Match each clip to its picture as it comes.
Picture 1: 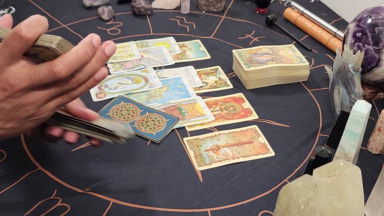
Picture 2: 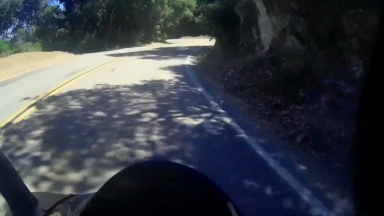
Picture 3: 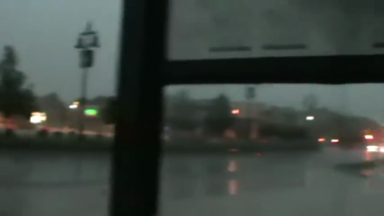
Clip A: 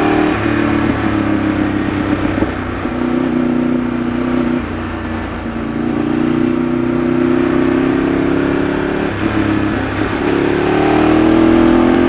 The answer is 2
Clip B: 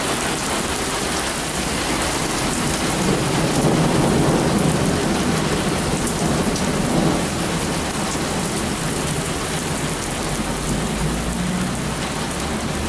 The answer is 3